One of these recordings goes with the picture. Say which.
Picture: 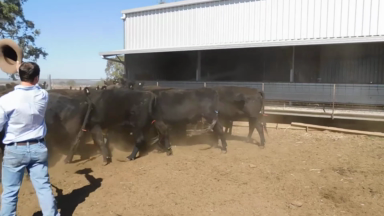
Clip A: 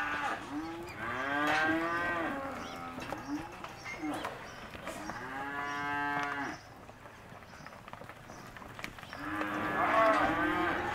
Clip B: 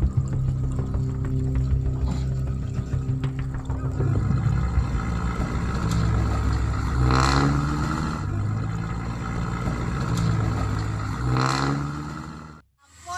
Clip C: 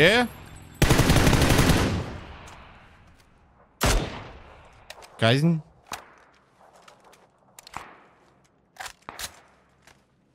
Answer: A